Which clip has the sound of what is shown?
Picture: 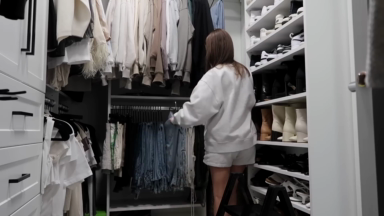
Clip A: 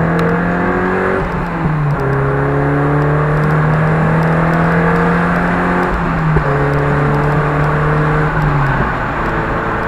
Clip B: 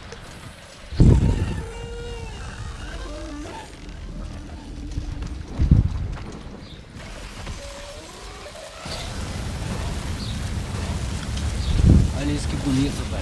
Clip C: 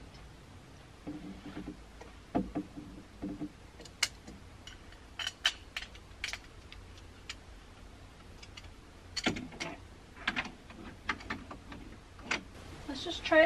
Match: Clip C